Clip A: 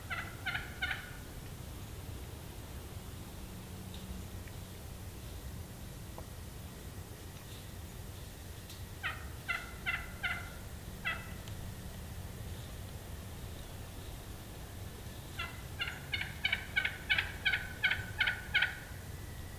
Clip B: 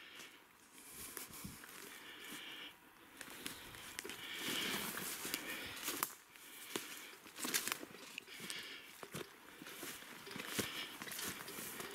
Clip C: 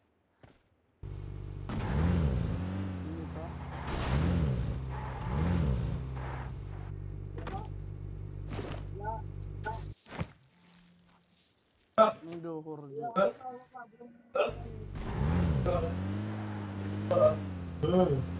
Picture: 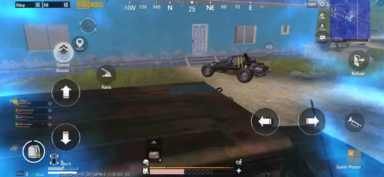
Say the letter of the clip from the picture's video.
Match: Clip C